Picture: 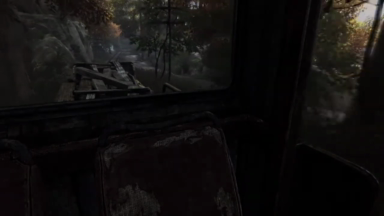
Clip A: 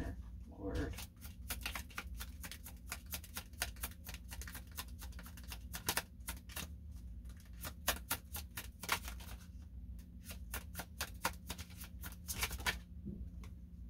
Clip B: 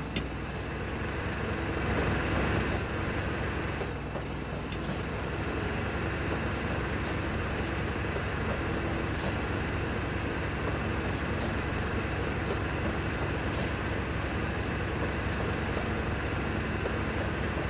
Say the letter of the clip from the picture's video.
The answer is B